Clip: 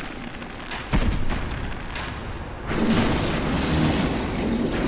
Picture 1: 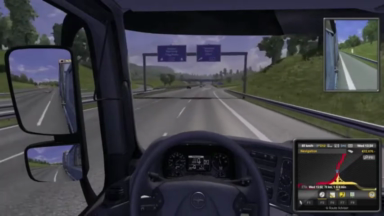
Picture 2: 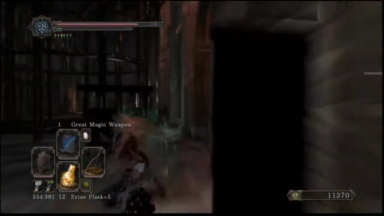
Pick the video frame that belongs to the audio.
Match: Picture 2